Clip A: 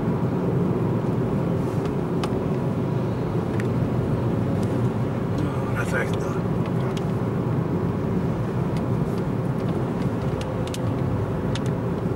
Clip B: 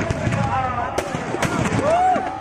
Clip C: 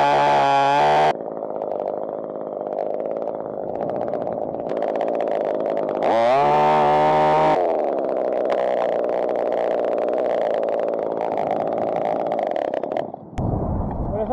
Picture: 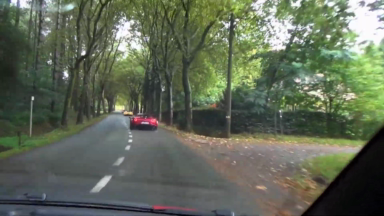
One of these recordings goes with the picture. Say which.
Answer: A